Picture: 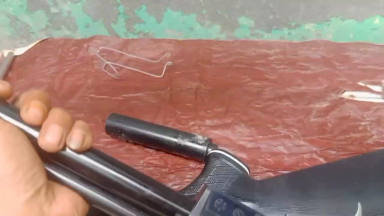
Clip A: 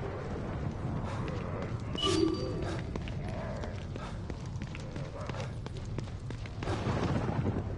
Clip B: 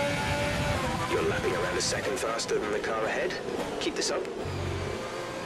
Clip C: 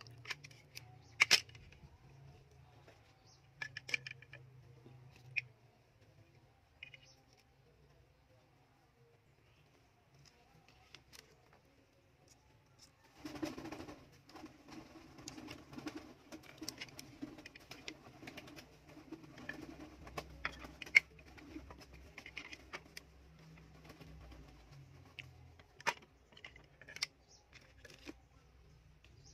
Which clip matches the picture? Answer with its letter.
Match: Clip C